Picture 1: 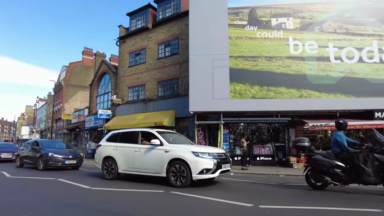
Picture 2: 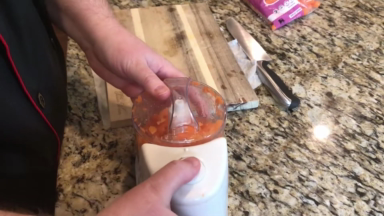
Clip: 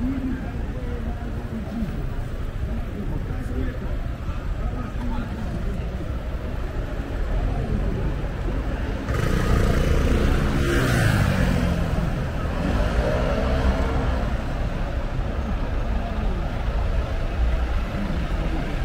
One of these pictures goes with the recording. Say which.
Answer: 1